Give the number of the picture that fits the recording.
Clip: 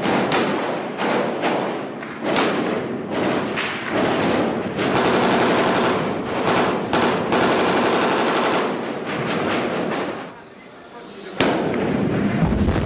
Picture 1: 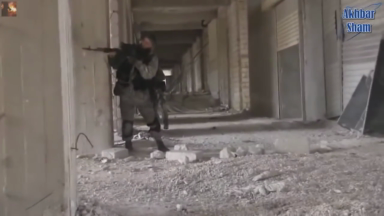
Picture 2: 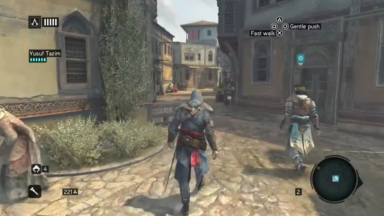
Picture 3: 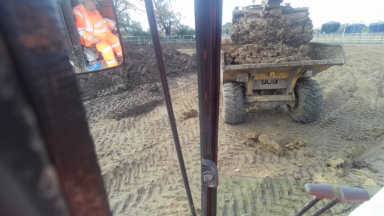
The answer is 1